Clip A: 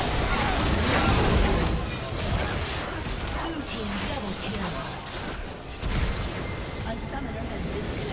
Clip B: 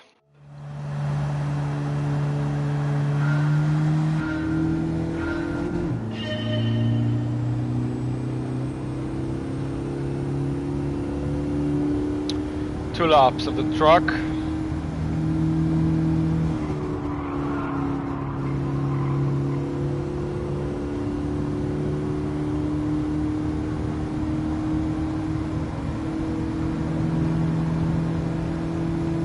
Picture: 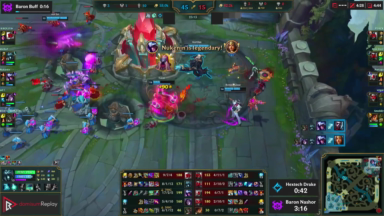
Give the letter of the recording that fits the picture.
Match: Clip A